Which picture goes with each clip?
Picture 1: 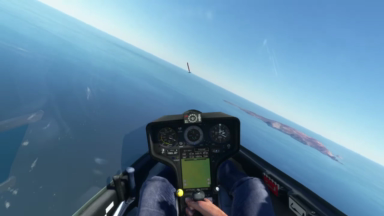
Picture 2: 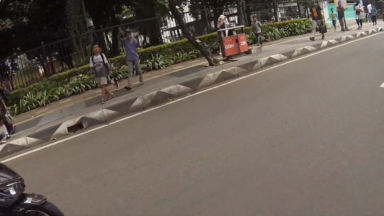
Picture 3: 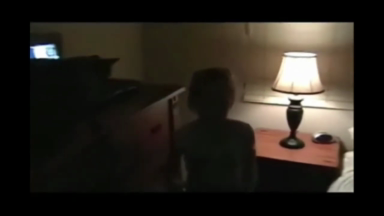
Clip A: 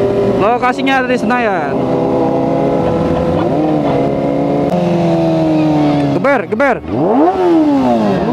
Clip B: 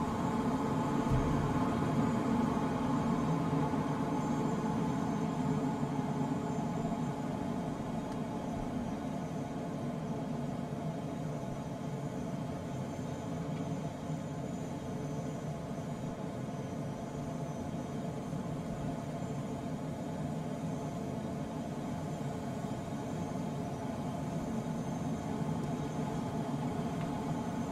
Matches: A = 2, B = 1